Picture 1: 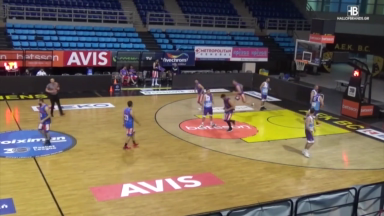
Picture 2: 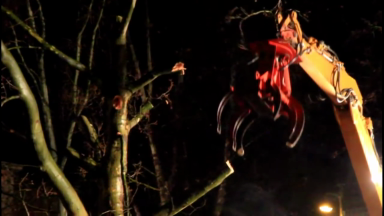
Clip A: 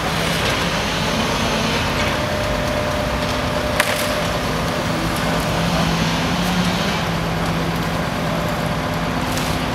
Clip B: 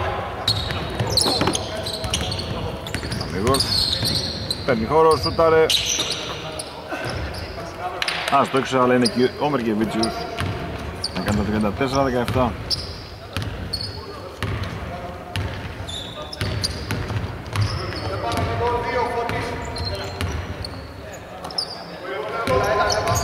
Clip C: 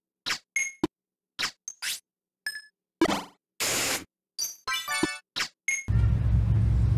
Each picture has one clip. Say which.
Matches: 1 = B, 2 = A